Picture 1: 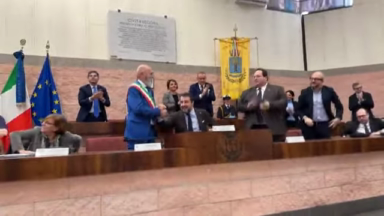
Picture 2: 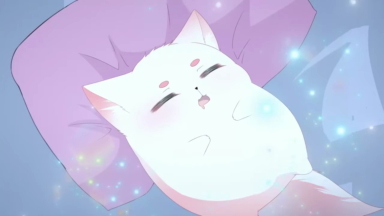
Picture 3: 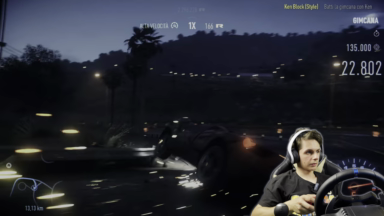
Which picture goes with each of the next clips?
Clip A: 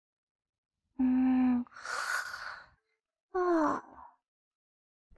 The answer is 2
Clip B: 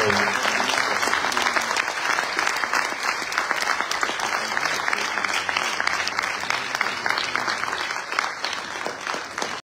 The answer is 1